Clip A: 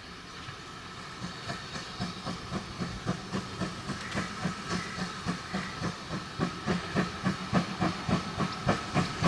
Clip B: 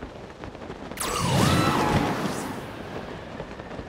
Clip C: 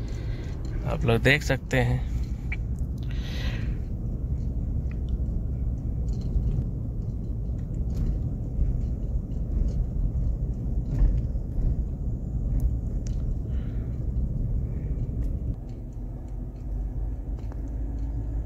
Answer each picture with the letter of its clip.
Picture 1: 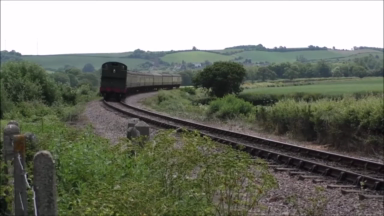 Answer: A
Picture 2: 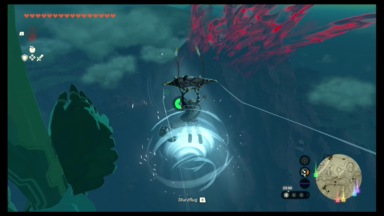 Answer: B